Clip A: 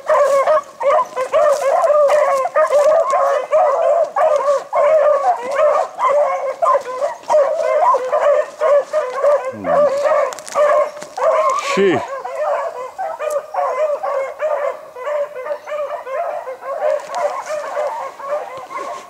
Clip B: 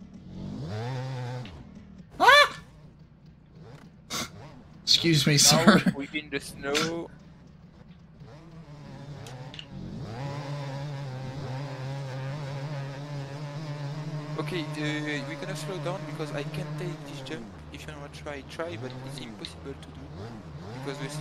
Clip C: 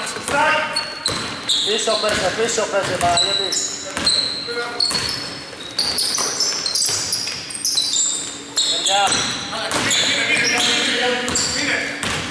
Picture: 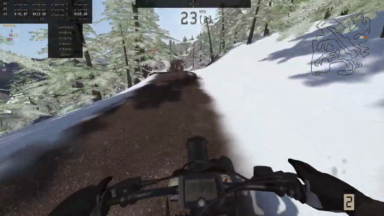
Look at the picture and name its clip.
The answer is B